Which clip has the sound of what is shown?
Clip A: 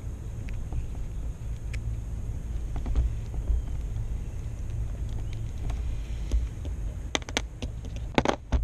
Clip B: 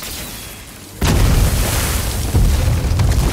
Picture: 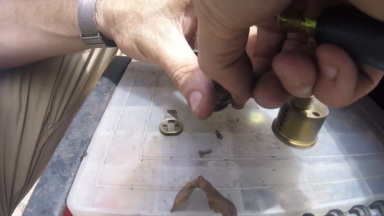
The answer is A